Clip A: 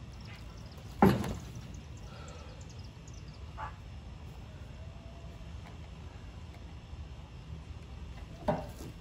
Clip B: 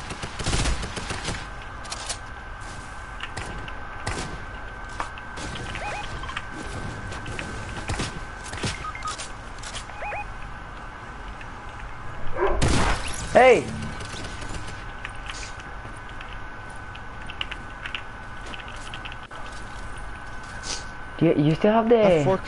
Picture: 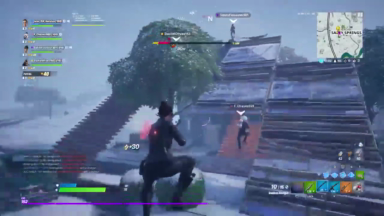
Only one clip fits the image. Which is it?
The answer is B